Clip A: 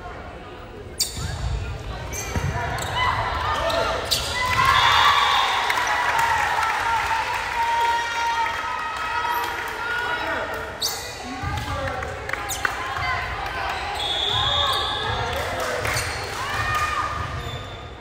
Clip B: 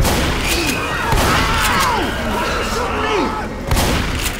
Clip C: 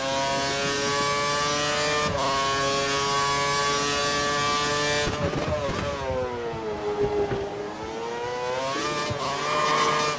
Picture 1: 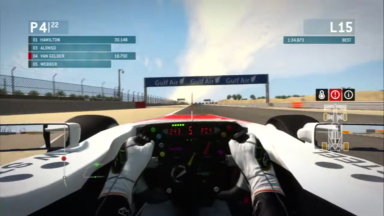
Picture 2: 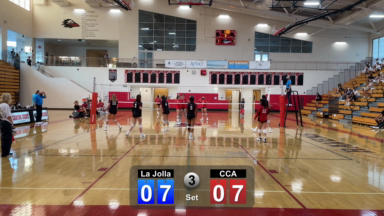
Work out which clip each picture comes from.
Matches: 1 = C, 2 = A